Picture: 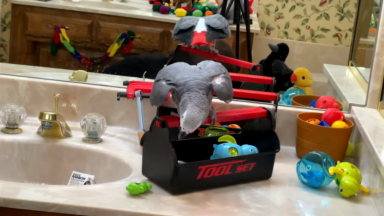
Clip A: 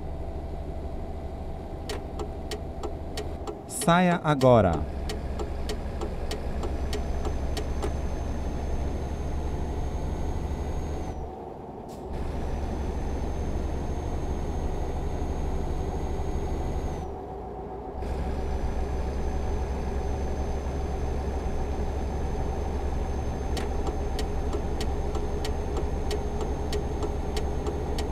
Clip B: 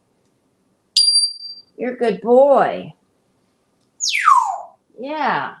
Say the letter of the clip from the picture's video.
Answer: B